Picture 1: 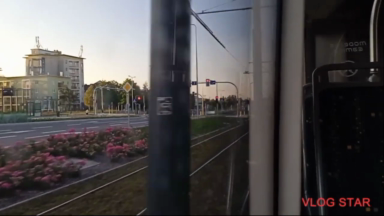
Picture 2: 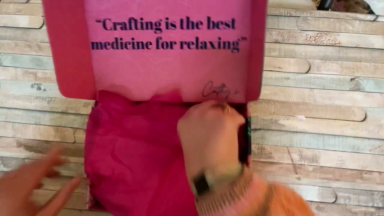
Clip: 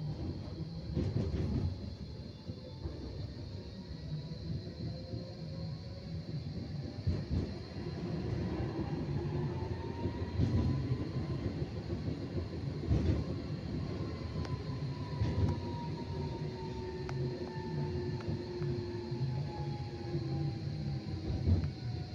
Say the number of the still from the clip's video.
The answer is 1